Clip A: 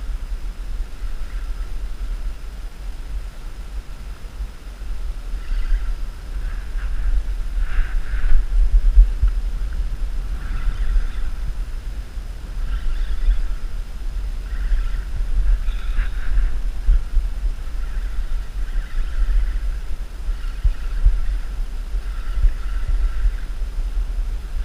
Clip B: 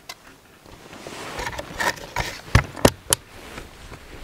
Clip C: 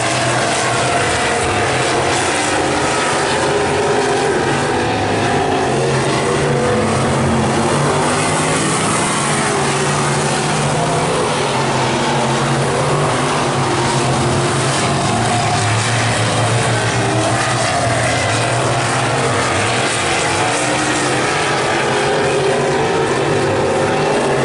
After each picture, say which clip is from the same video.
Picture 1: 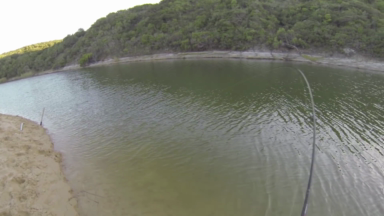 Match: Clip A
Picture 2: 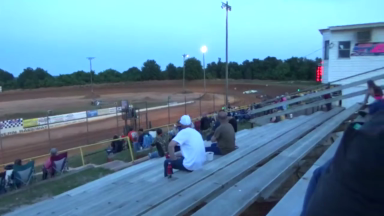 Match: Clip C